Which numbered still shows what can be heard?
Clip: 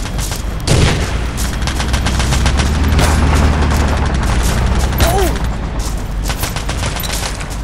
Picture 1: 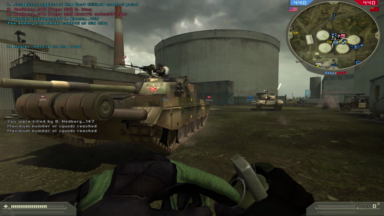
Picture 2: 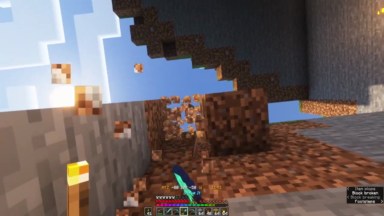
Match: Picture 1